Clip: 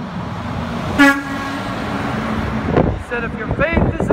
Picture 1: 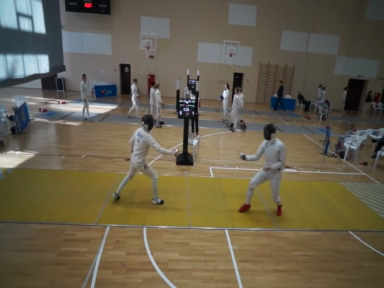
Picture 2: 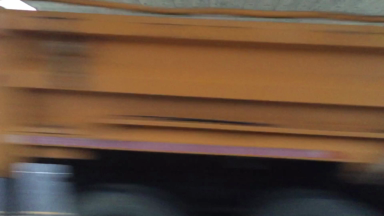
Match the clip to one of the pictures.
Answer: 2